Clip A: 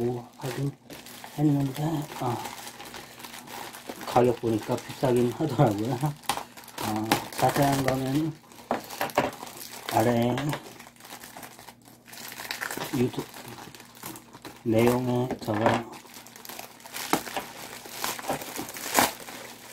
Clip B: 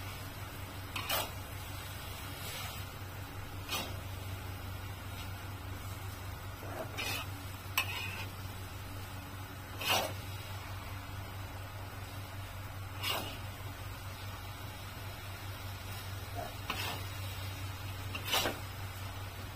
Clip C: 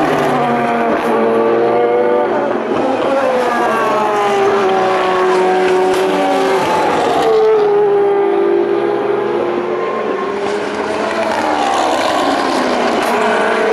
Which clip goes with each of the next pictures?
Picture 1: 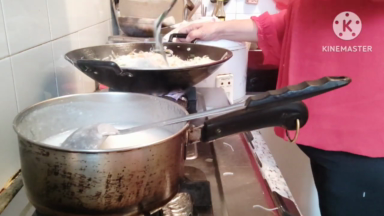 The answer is B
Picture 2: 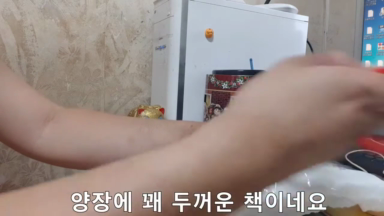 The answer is A